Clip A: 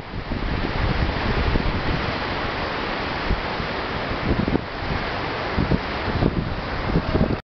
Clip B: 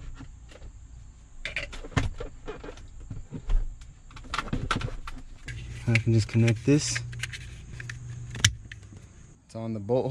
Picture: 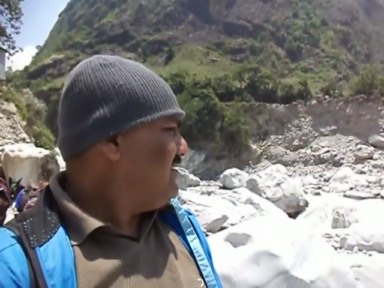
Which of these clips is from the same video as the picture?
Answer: A